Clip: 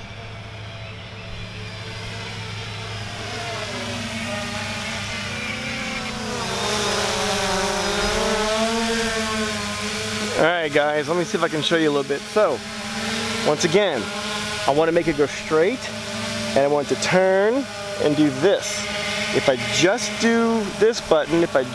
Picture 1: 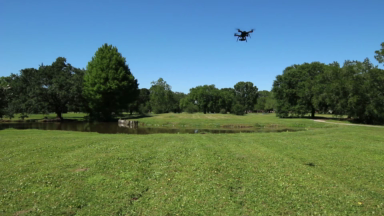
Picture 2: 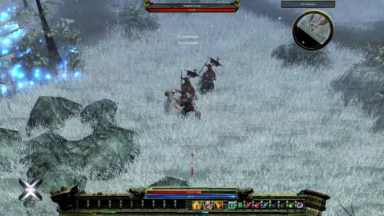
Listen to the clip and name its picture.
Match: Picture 1